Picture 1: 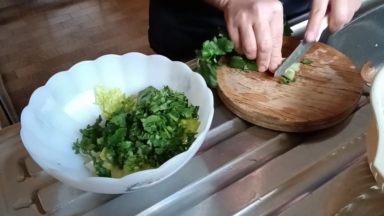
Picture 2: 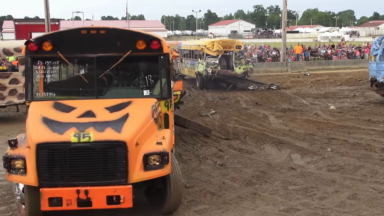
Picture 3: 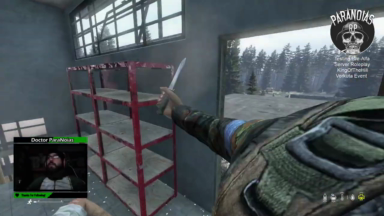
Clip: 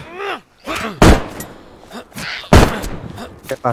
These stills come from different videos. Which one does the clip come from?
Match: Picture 3